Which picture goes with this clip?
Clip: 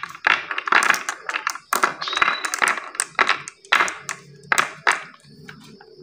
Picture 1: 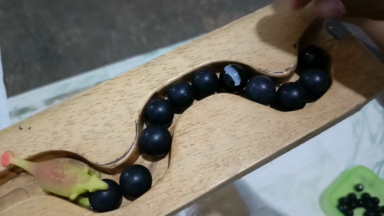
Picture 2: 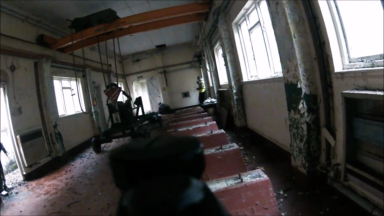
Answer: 1